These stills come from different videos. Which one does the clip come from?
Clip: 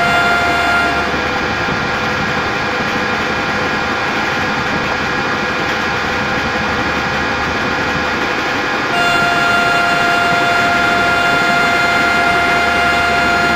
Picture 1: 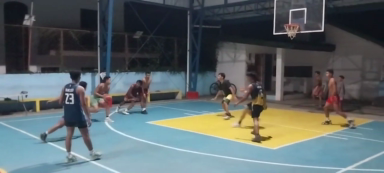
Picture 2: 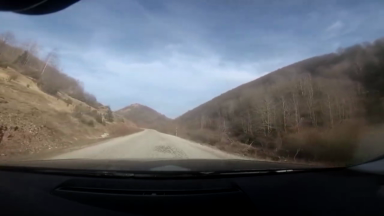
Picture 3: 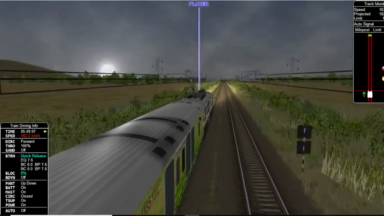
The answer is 3